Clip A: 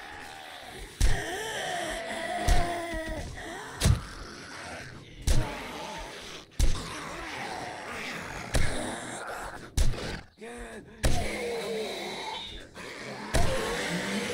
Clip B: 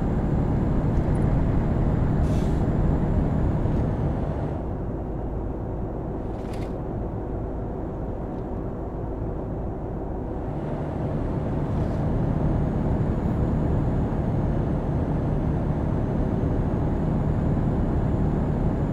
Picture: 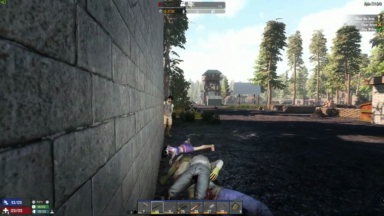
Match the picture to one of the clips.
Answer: A